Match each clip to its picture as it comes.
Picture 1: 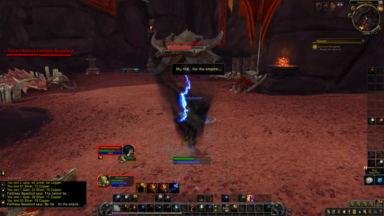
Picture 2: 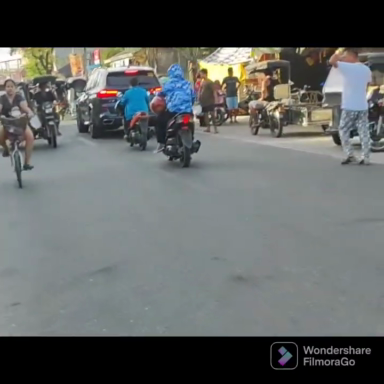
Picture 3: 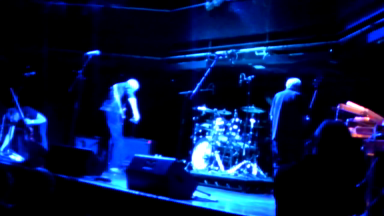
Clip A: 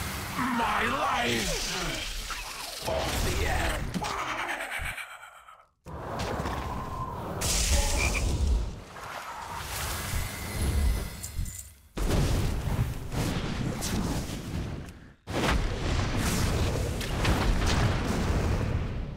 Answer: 1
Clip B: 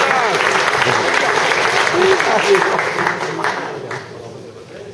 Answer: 3